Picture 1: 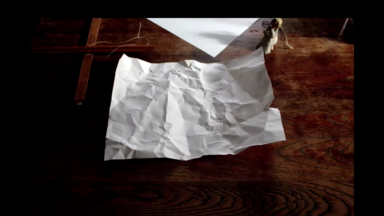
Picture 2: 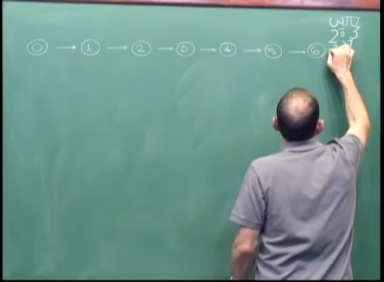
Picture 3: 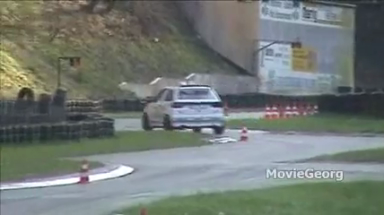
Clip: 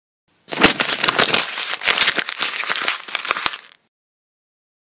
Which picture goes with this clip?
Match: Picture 1